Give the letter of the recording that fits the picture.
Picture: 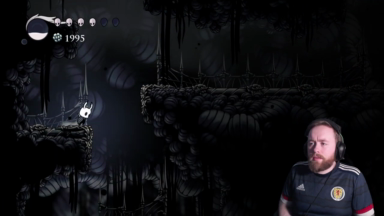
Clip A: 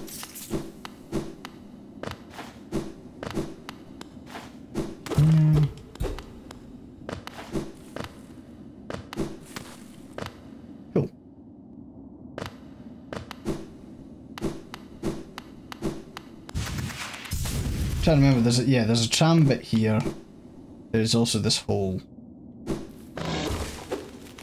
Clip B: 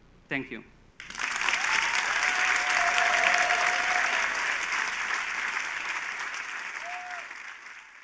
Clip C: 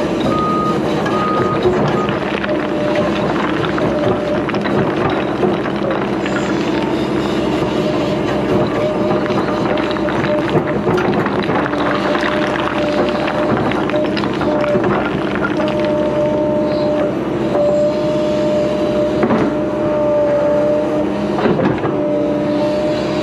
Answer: A